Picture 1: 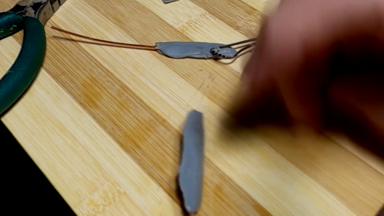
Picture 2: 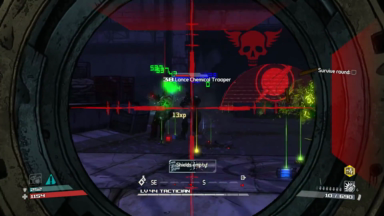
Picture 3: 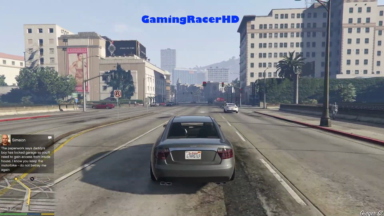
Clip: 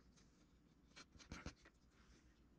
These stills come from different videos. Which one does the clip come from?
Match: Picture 1